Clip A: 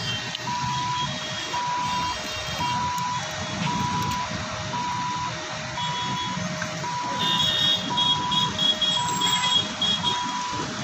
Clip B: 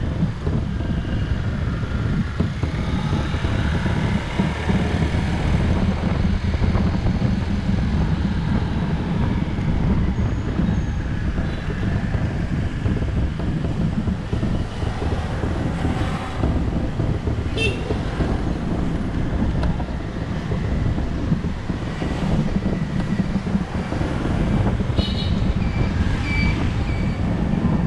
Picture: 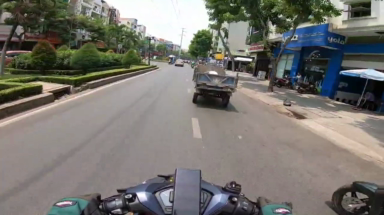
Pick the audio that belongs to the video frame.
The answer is B